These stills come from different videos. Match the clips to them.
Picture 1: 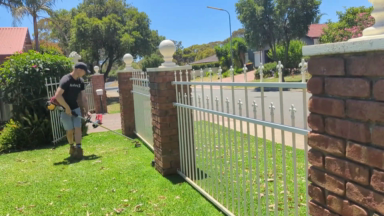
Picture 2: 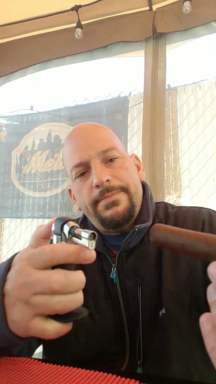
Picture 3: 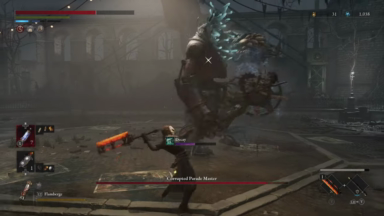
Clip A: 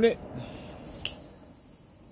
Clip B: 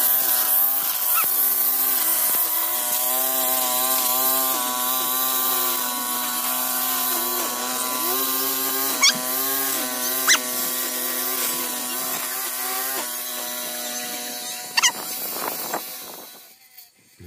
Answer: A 2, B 1